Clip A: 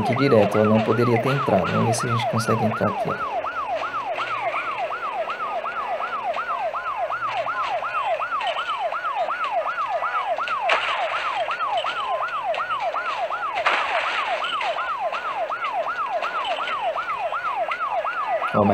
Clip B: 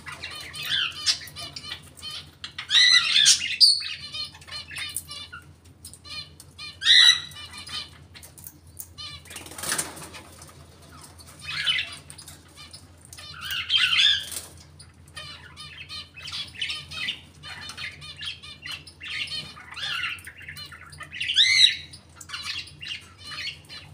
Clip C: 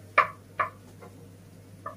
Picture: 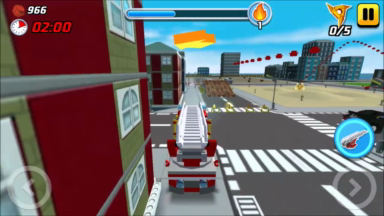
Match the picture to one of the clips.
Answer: A